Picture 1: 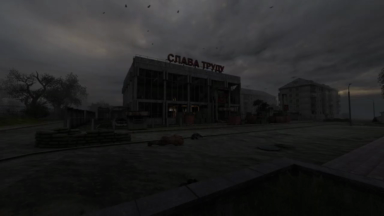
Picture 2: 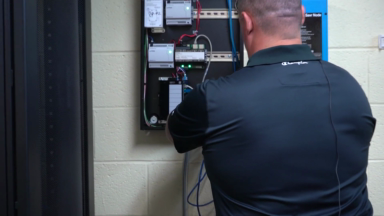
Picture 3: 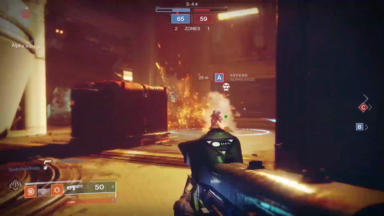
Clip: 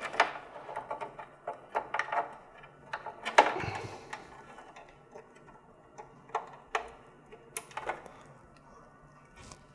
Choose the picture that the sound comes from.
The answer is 2